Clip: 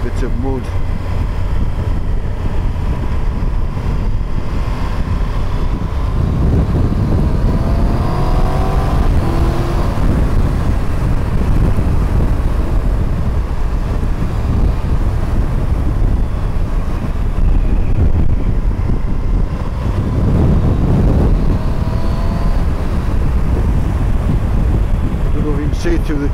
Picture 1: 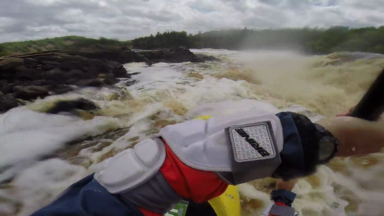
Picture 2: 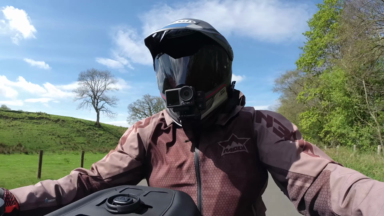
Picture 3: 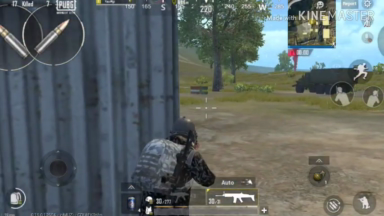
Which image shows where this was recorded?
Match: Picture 2